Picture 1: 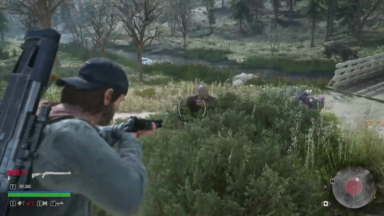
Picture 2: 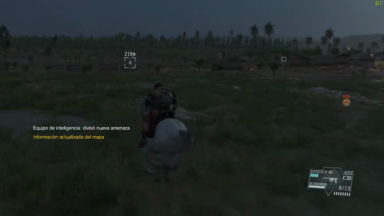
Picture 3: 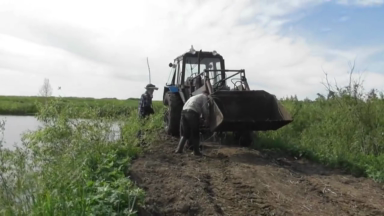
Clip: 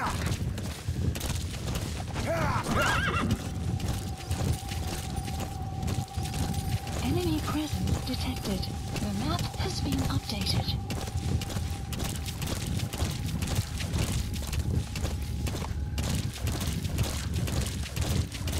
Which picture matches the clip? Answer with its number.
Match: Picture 2